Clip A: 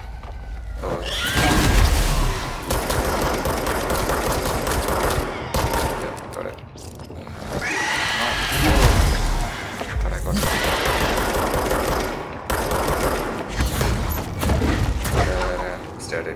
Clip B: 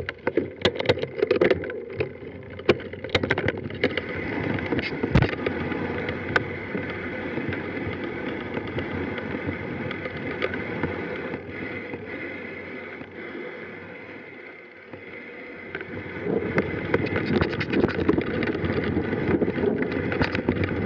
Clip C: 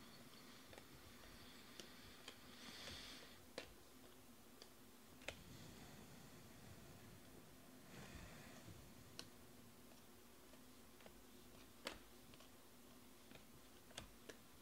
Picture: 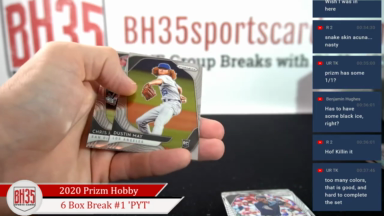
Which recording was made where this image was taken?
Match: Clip C